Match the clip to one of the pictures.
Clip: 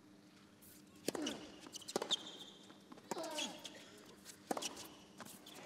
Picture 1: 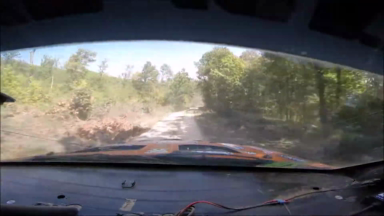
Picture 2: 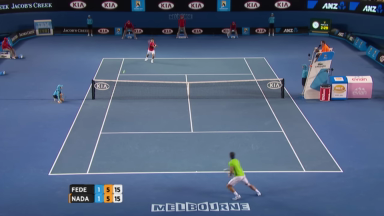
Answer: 2